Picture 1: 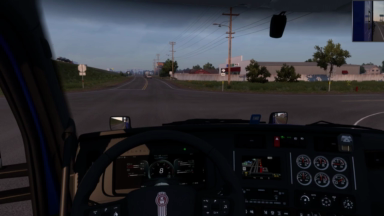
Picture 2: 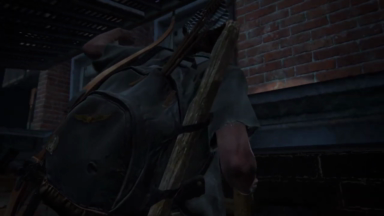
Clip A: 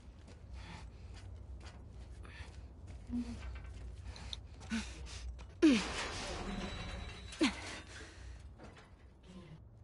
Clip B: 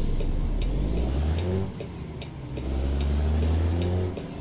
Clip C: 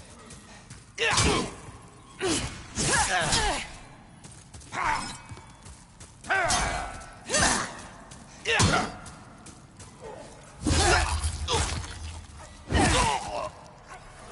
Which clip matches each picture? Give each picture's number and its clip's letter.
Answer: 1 B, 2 A